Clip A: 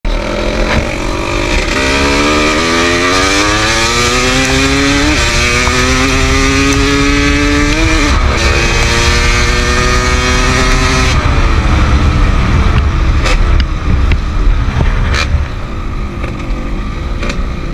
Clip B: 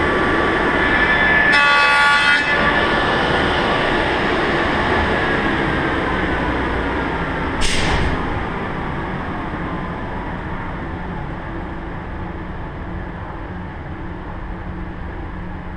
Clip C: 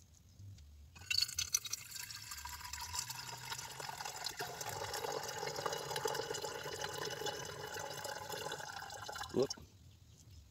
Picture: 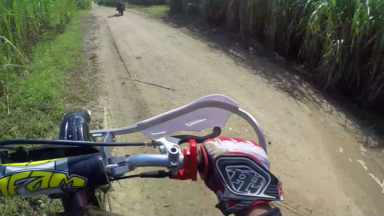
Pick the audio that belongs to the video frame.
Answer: A